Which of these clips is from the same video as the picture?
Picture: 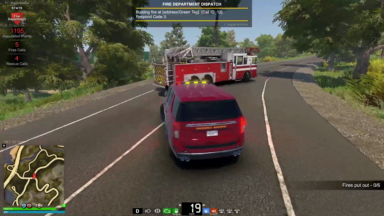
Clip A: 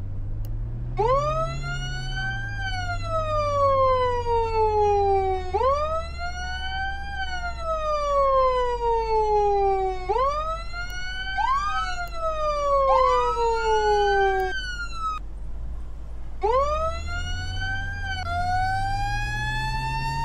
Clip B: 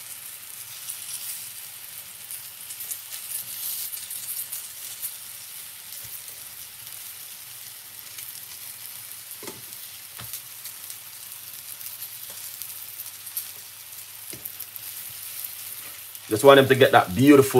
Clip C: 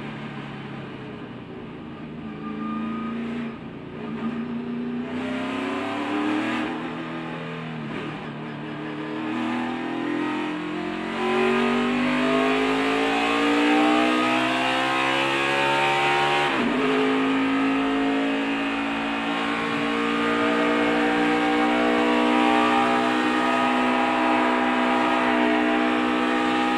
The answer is A